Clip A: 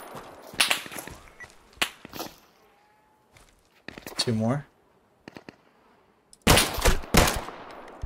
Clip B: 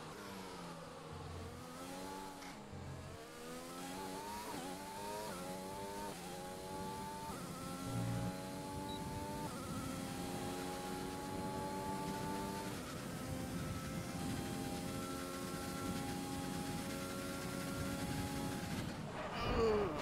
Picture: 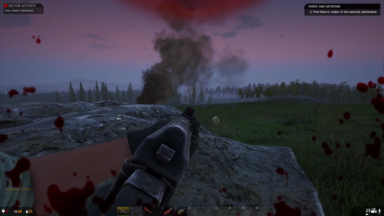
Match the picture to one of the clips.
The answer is A